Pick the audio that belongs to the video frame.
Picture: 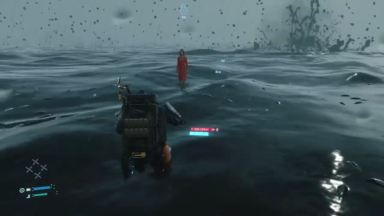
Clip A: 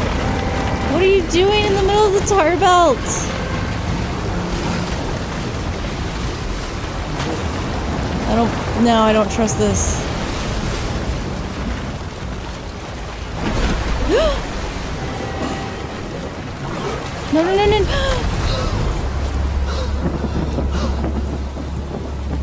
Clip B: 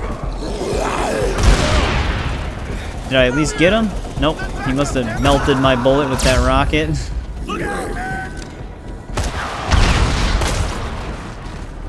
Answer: A